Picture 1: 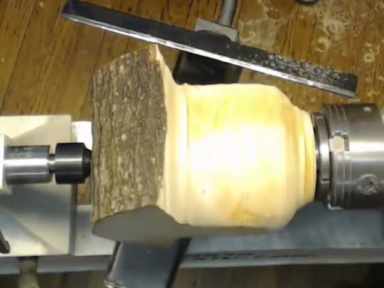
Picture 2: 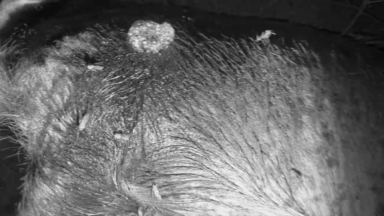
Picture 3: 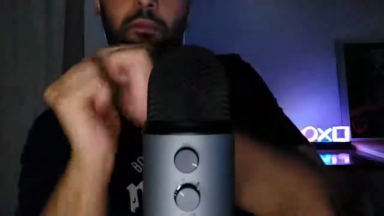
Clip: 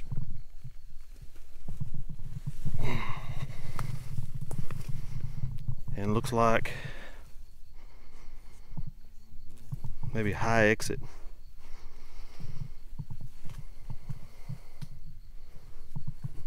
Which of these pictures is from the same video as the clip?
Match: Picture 2